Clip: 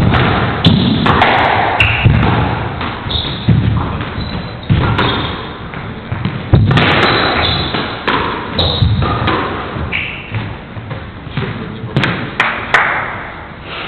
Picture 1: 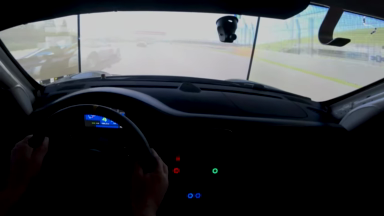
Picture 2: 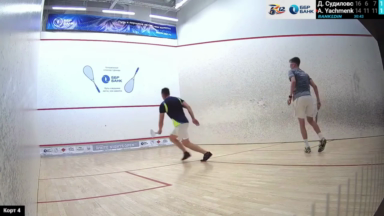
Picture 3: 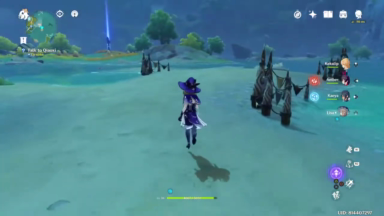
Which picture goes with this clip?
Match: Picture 2